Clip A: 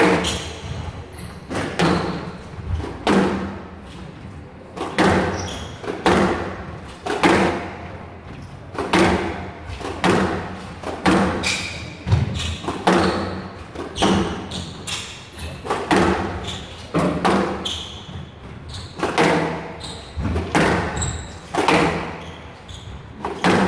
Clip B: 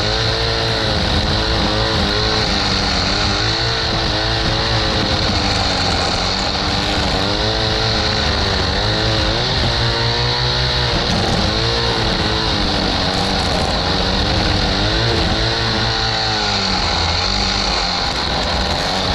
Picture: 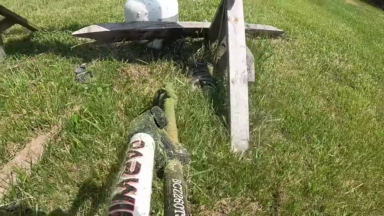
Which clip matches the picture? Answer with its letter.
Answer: B